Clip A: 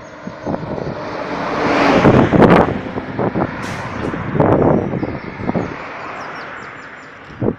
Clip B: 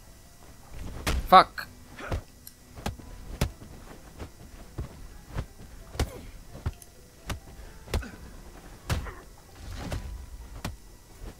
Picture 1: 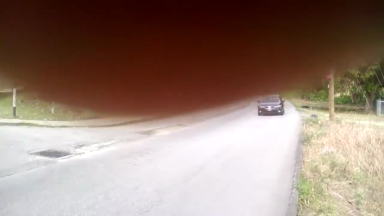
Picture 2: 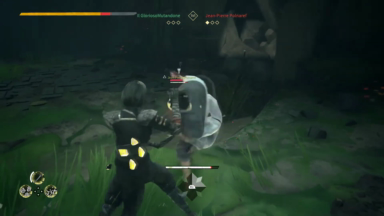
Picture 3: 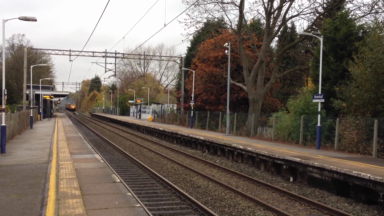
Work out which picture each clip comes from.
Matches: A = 1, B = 2